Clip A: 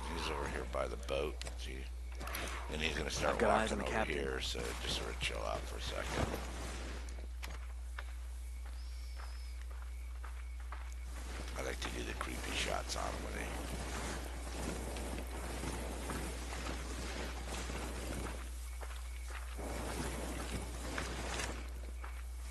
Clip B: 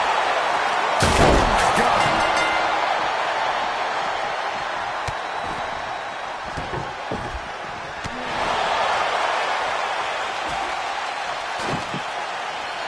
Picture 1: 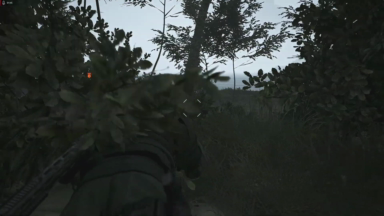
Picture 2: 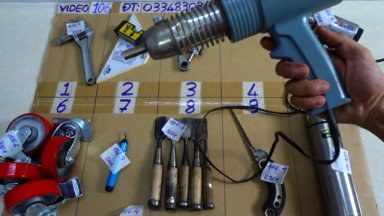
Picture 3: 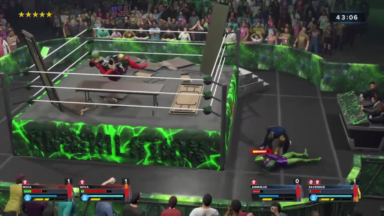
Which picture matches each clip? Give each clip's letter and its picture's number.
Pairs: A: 1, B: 3